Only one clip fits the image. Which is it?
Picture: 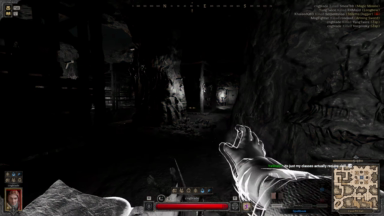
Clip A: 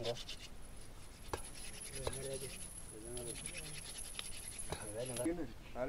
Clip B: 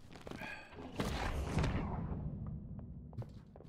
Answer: B